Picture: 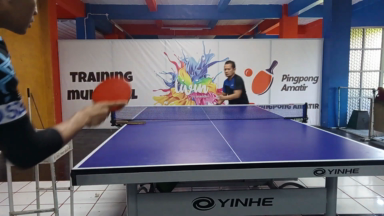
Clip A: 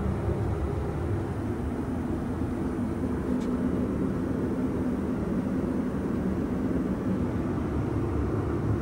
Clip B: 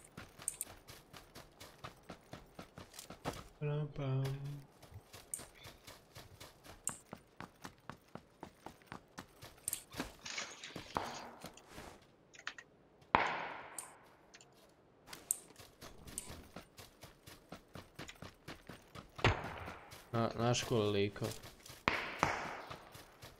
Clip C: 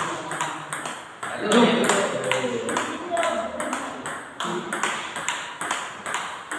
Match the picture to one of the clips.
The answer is C